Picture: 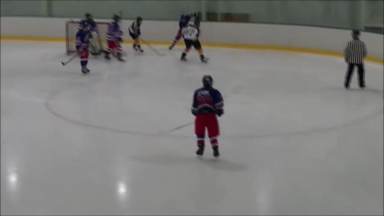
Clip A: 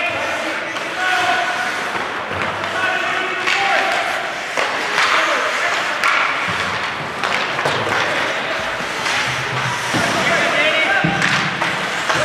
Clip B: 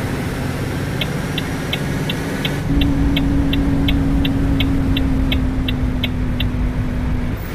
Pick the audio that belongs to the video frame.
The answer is A